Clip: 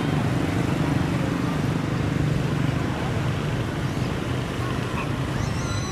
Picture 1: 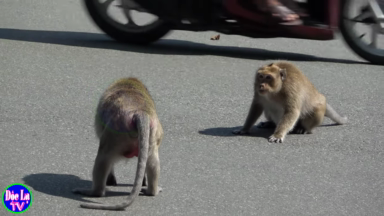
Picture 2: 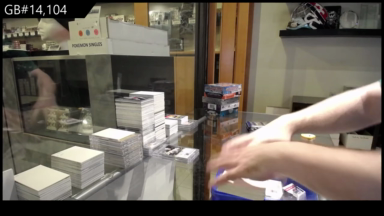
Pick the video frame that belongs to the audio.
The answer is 1